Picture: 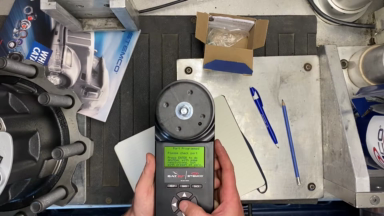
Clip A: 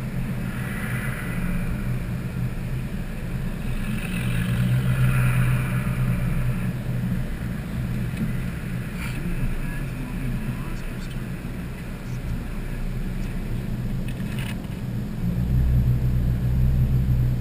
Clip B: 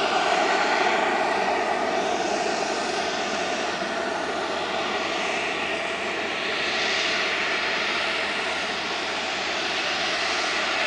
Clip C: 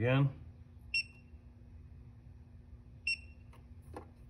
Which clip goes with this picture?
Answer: C